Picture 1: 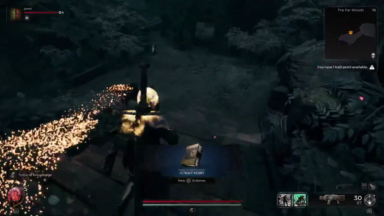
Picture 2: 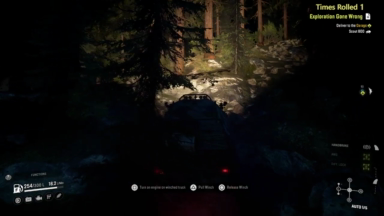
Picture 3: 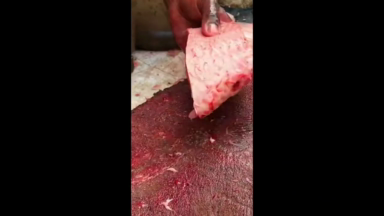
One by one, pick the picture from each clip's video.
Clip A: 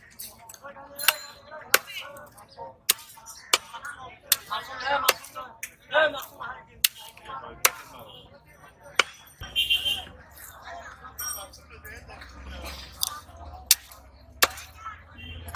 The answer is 3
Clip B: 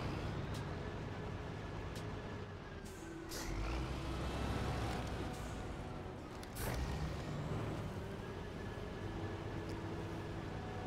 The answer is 2